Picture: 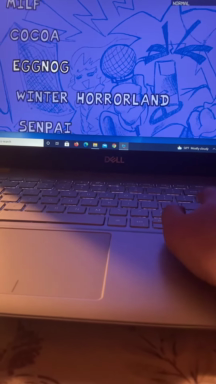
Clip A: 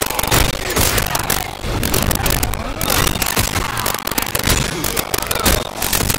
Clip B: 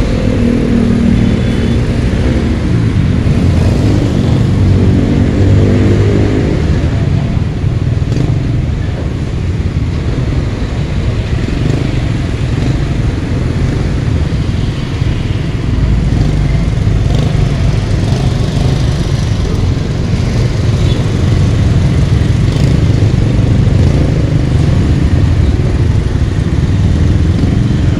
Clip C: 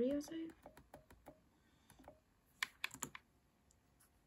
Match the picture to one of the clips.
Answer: C